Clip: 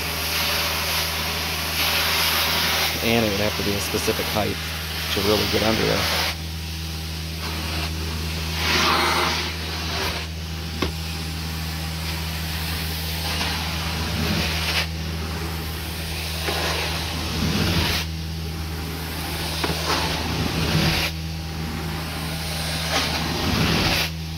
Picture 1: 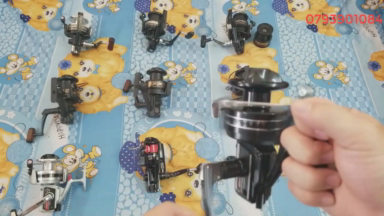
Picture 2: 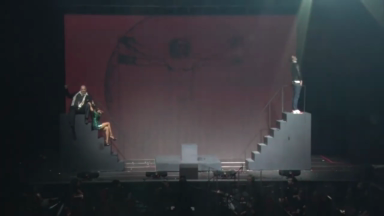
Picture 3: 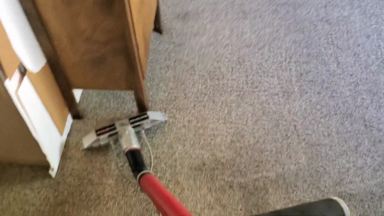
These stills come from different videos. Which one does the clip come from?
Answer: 3